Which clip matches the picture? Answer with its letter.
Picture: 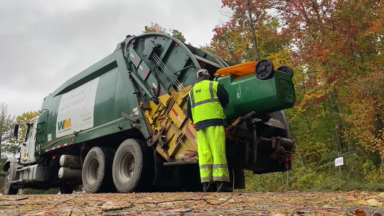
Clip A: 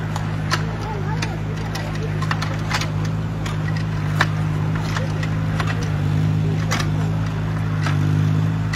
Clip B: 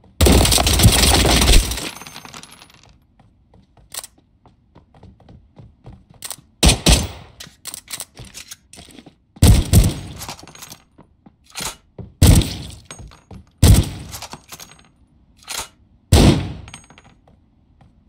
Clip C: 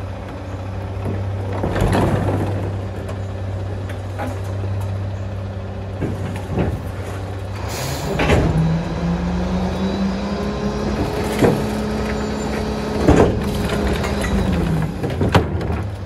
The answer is C